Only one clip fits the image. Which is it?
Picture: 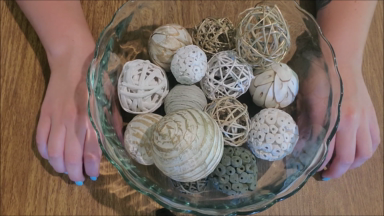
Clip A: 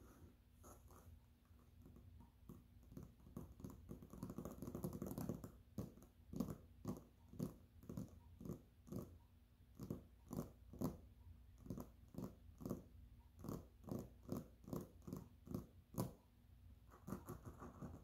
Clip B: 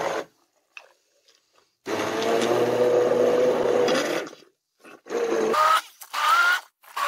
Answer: A